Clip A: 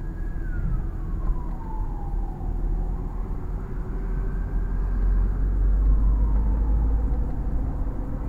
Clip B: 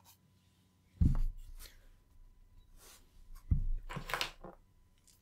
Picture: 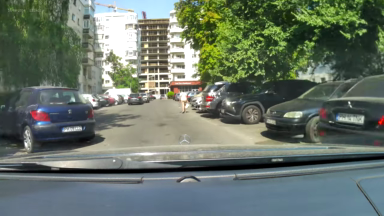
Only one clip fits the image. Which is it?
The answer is A